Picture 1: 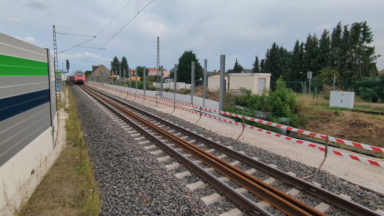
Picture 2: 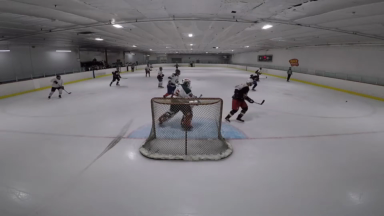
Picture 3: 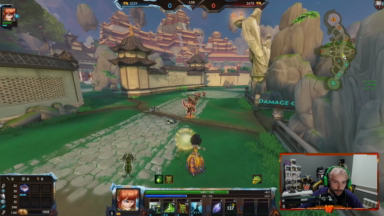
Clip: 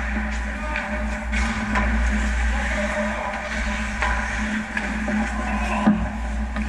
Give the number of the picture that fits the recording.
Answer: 2